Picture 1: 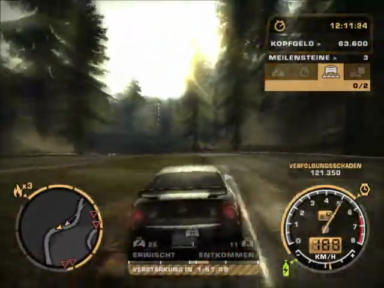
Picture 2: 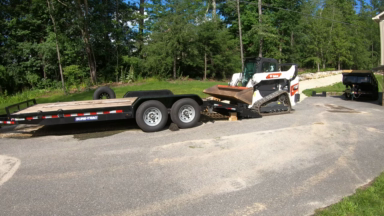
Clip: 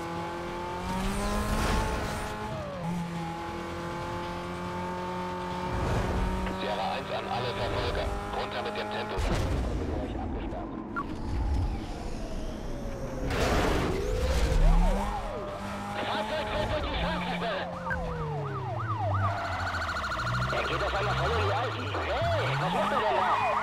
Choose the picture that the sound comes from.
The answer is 1